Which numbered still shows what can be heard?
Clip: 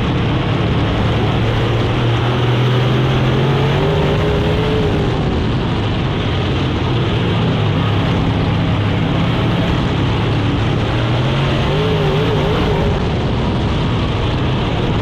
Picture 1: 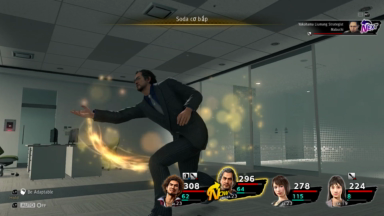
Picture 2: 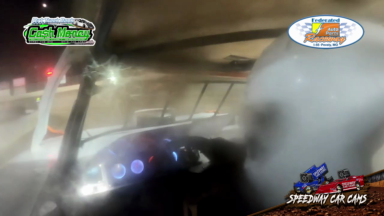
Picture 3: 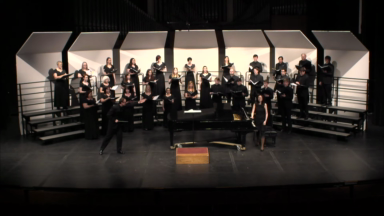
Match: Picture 2